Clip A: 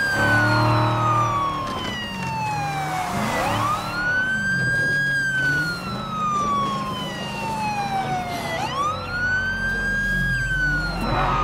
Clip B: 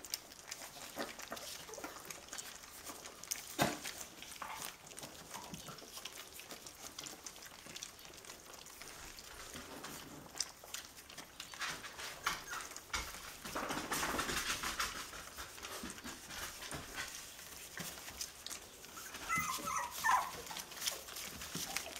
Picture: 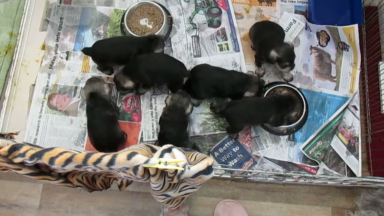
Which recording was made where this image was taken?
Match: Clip B